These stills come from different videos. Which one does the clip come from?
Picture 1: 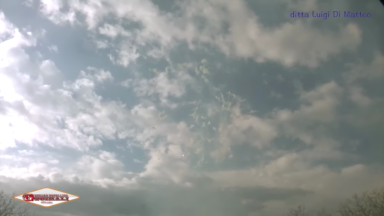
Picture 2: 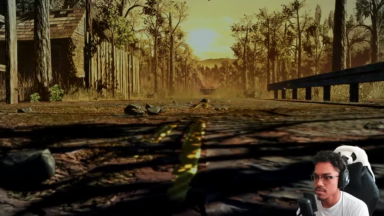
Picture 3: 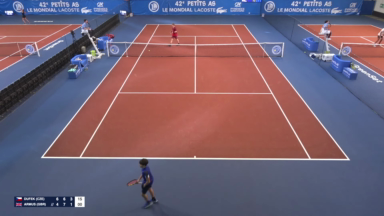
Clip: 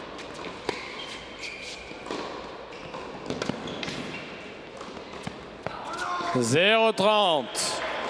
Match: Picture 3